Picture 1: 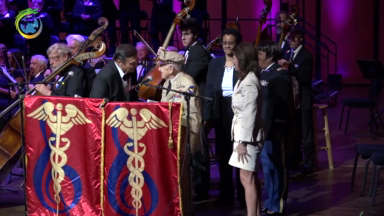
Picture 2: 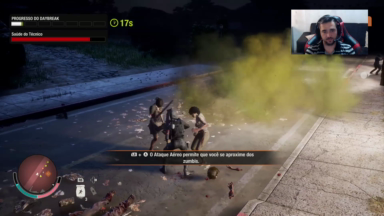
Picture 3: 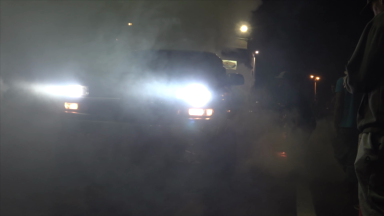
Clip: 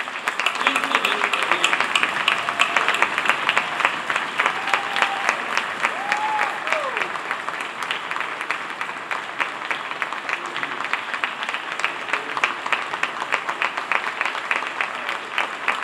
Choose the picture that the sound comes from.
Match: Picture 1